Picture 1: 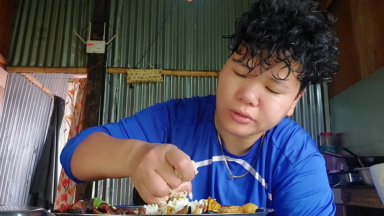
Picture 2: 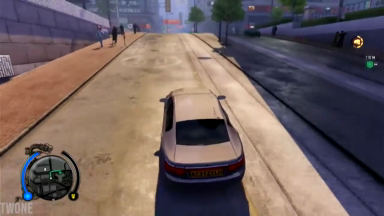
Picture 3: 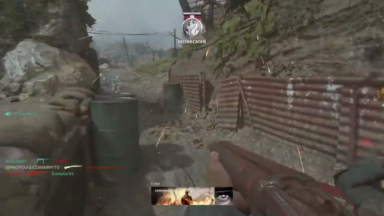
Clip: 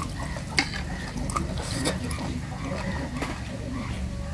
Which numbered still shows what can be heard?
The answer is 1